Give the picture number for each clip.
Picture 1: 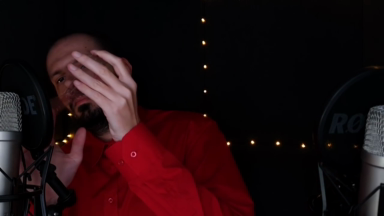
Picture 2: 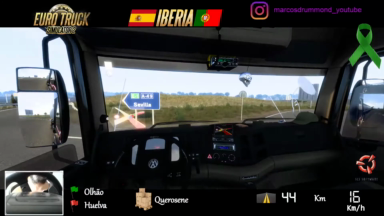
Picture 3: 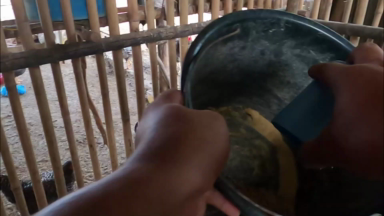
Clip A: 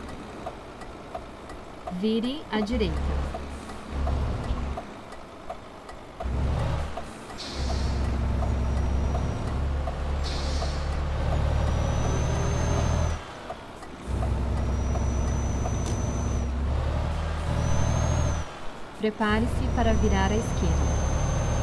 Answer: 2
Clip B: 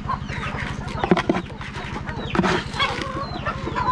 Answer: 3